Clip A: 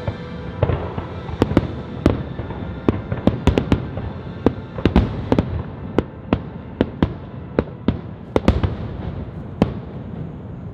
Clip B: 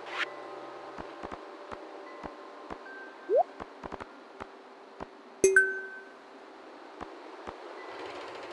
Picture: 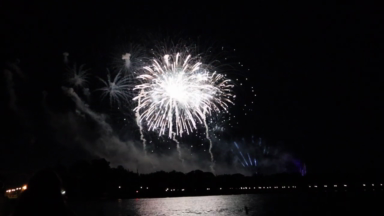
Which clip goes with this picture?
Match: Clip A